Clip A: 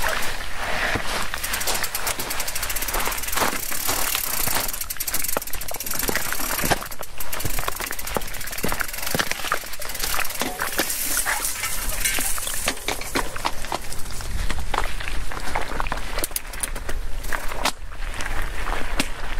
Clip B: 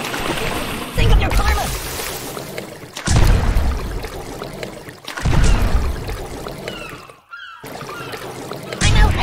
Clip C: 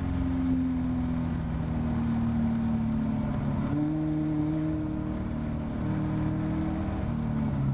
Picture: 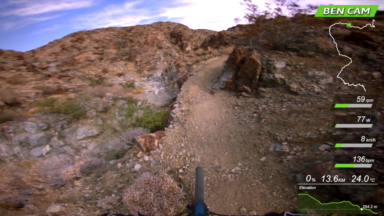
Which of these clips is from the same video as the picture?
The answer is A